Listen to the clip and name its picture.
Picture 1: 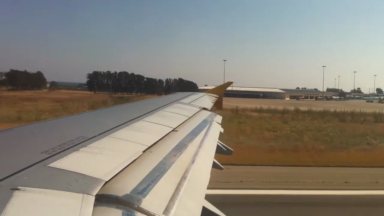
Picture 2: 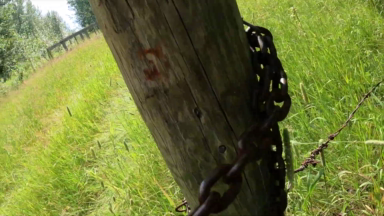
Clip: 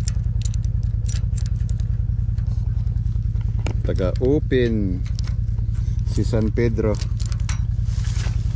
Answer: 2